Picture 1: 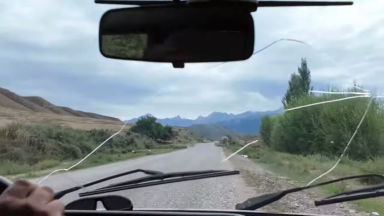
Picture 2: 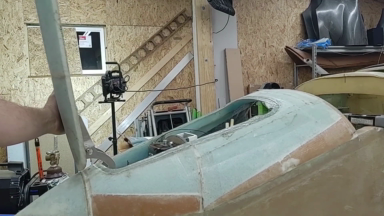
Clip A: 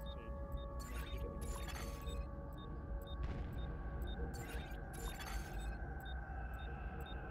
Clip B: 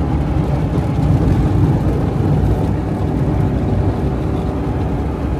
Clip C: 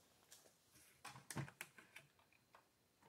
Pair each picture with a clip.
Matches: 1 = B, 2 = C